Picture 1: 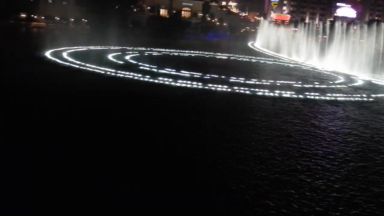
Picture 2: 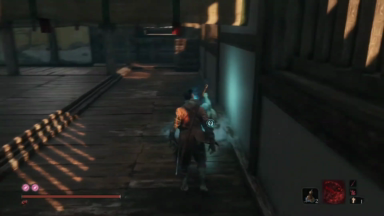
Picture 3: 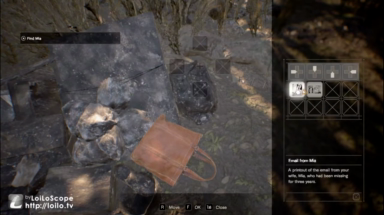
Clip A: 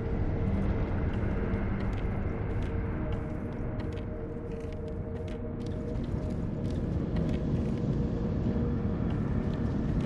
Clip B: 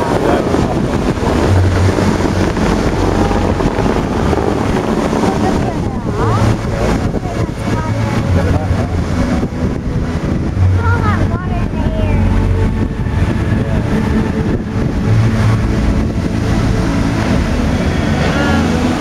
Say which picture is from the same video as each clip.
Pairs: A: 2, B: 1